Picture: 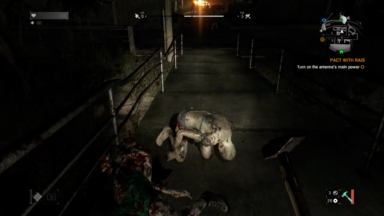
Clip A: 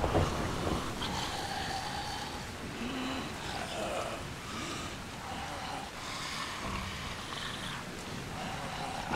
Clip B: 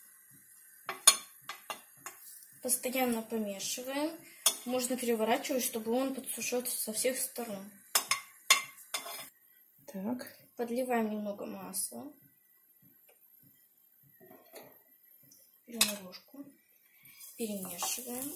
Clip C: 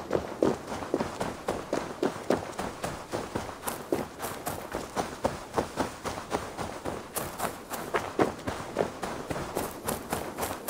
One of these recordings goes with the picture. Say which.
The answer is A